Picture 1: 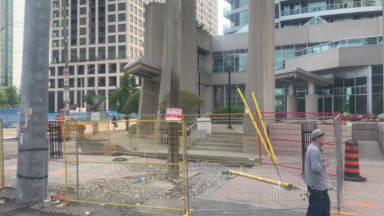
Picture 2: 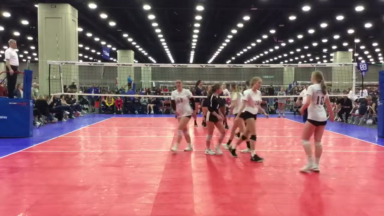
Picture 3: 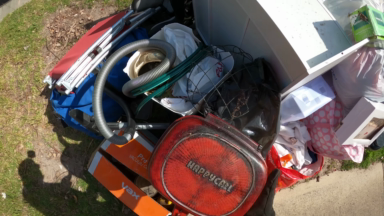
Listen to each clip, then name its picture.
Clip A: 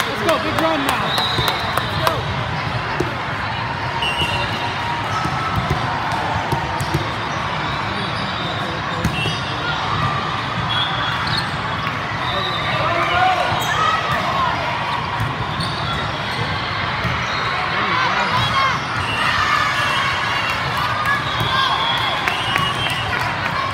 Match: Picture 2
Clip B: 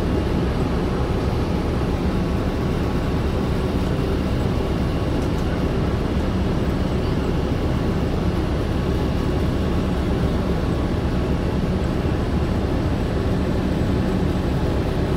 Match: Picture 1